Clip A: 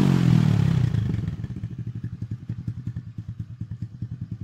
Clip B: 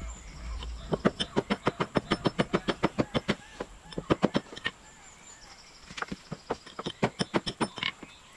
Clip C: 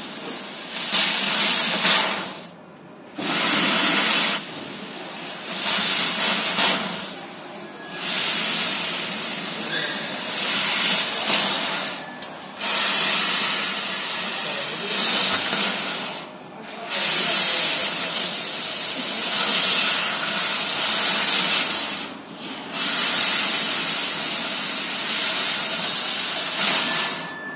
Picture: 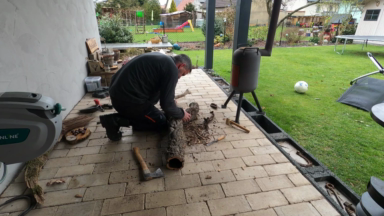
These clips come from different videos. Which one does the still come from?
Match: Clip B